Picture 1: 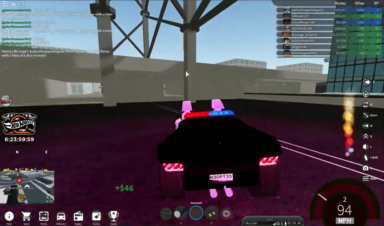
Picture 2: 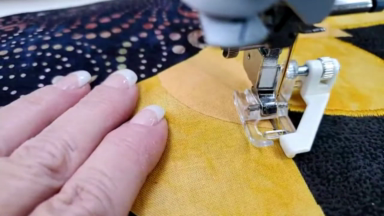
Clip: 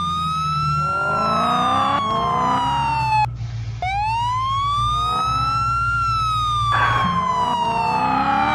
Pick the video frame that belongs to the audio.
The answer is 1